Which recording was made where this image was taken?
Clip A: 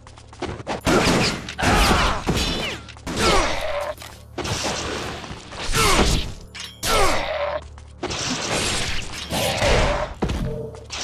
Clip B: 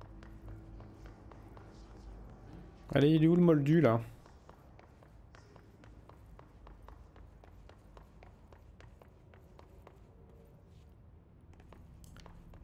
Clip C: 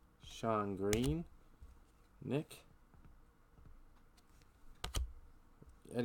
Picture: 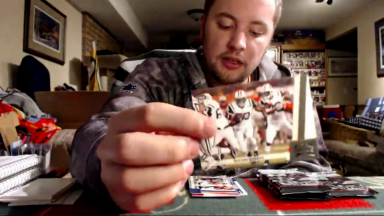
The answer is C